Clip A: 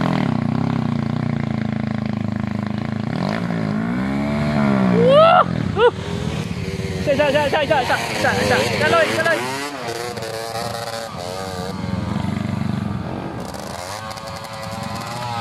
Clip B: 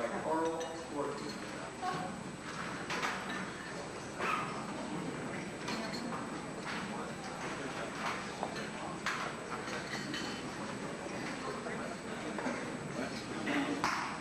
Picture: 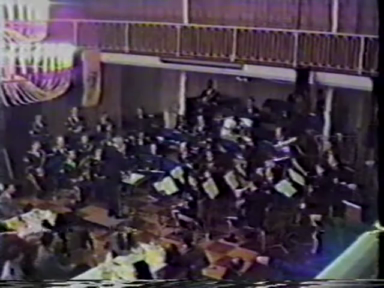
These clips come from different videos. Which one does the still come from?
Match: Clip B